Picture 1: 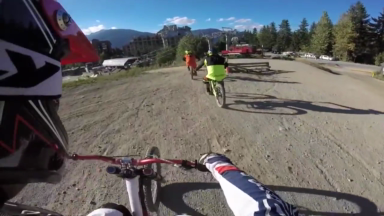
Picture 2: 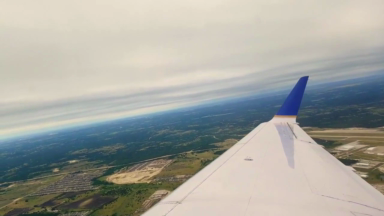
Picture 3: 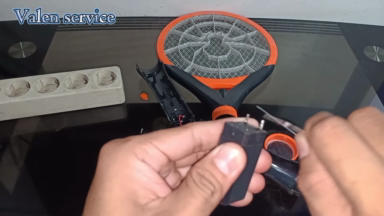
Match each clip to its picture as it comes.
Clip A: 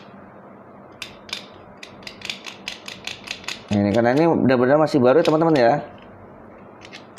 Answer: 3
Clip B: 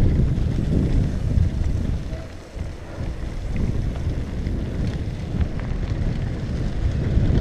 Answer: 1